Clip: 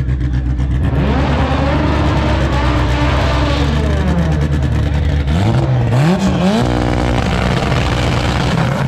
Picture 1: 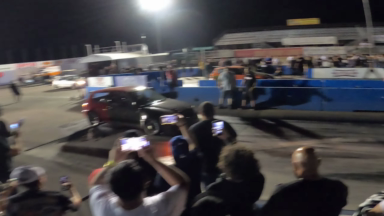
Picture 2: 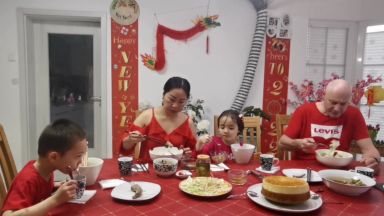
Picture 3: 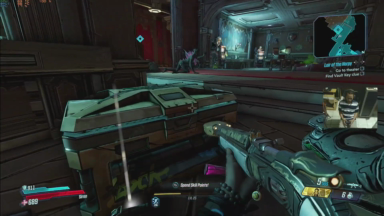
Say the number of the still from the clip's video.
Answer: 1